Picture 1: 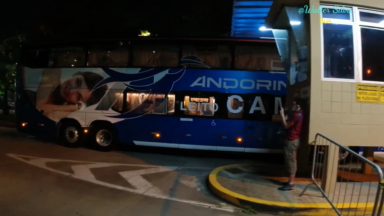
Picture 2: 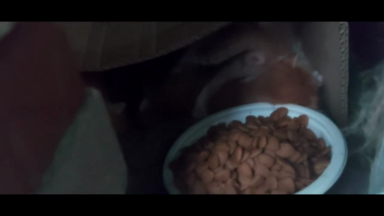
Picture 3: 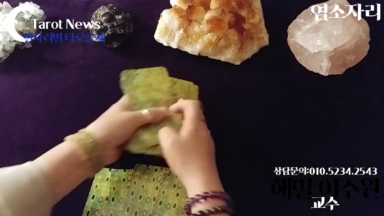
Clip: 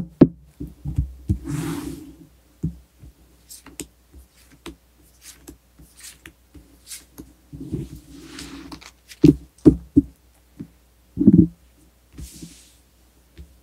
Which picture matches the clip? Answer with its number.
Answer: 3